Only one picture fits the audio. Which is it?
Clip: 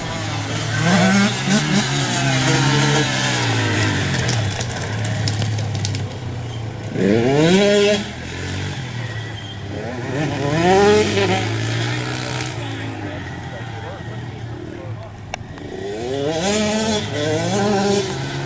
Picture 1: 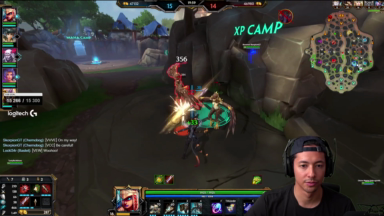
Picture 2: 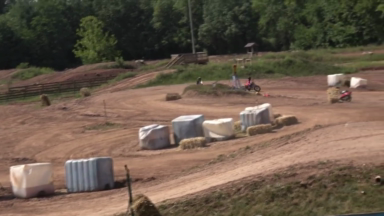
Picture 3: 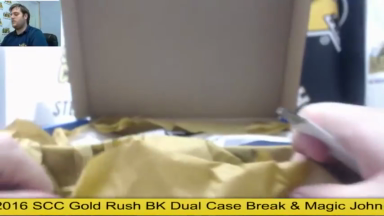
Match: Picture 2